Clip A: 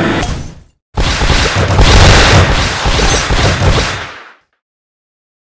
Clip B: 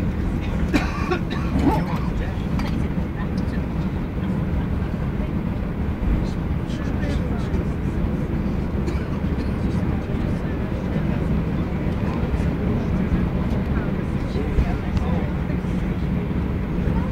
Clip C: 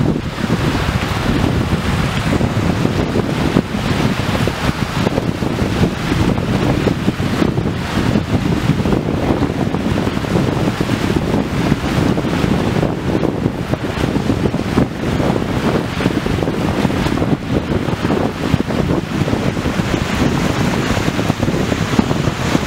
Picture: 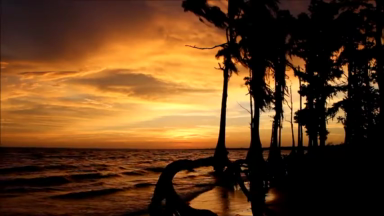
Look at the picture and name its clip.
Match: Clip C